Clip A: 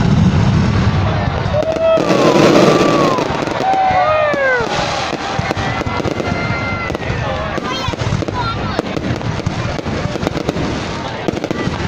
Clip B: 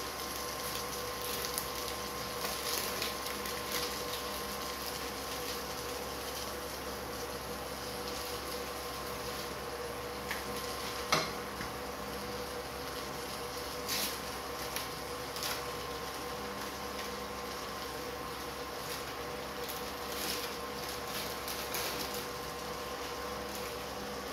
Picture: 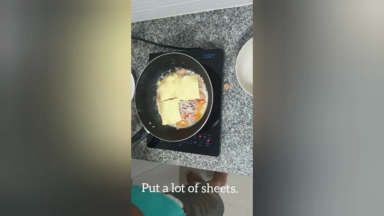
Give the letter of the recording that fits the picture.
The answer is B